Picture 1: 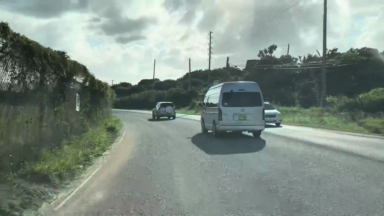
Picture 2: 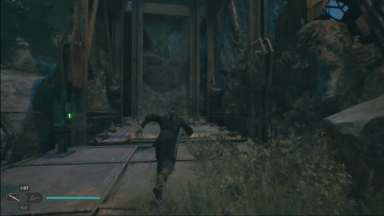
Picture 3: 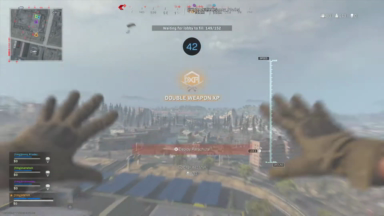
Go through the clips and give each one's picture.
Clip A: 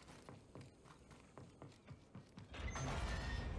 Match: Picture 2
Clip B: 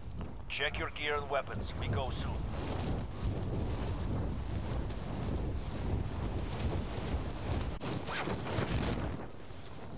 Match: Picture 3